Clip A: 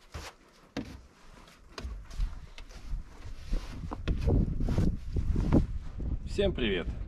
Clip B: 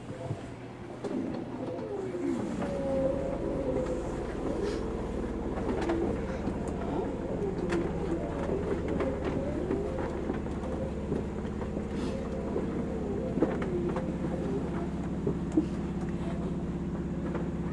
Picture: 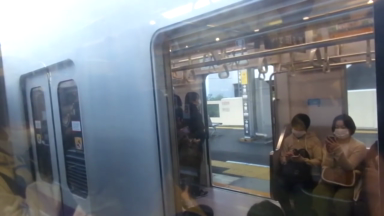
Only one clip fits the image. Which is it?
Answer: B